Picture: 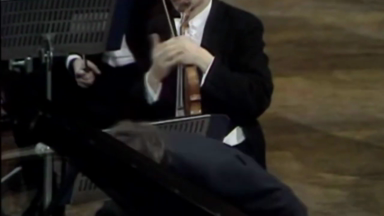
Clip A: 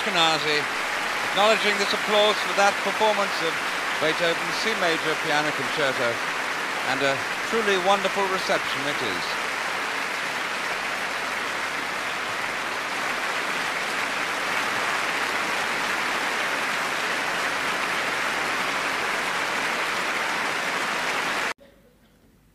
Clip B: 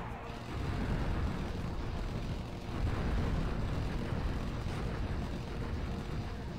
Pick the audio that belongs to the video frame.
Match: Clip A